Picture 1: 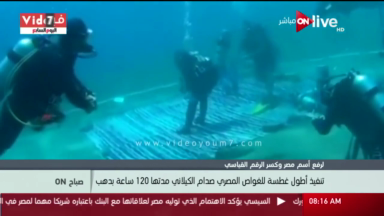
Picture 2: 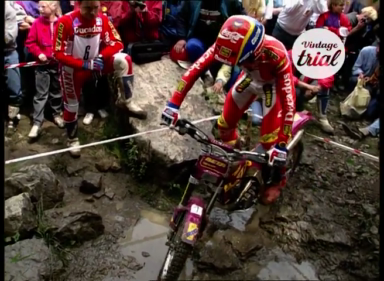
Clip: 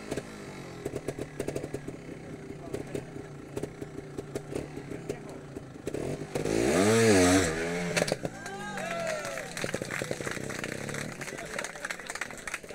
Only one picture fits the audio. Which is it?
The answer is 2